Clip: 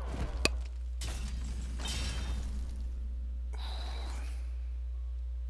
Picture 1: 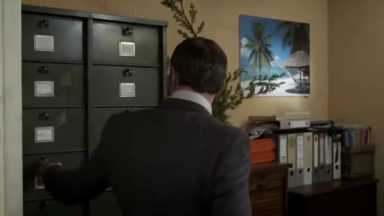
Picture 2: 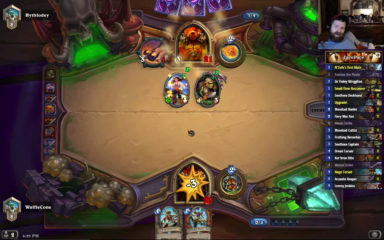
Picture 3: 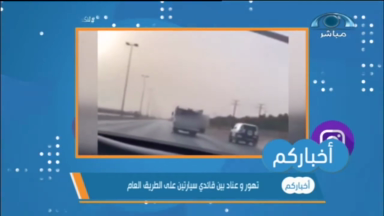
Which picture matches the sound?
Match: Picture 2